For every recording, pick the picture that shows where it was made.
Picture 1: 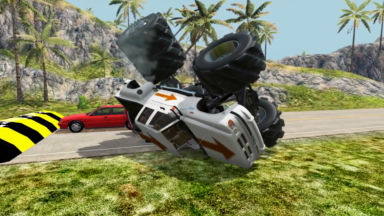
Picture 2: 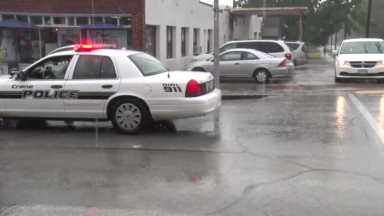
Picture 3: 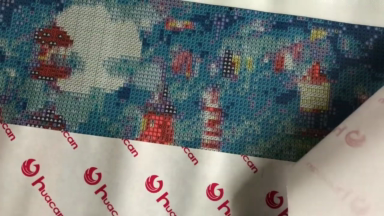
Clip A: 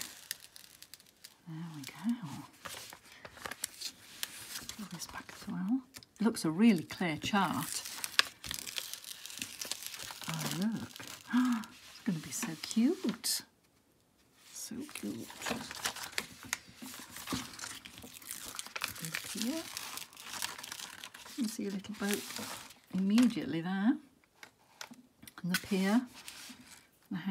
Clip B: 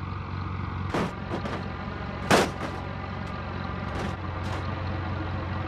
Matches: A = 3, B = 1